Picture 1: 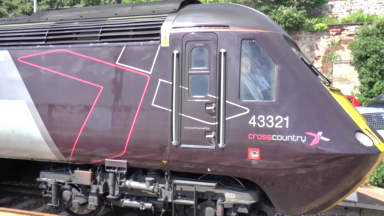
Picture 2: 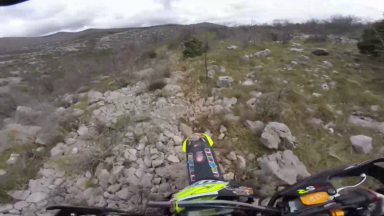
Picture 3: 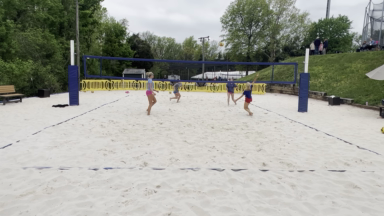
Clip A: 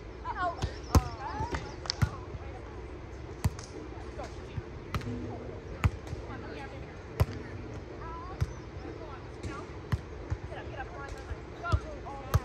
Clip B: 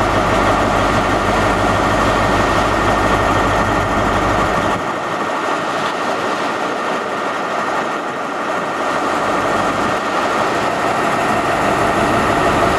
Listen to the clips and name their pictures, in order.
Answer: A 3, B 1